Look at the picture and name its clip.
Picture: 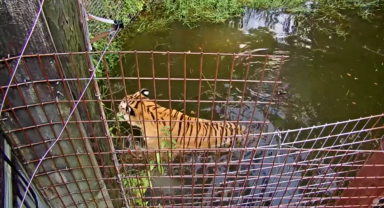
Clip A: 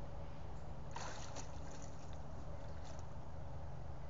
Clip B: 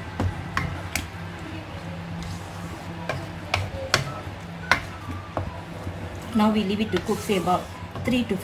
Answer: A